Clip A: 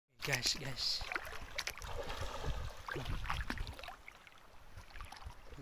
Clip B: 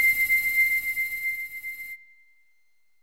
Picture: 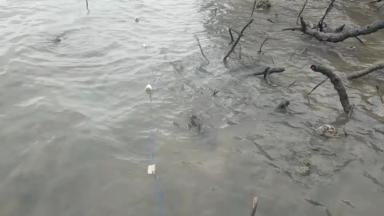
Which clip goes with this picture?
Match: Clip A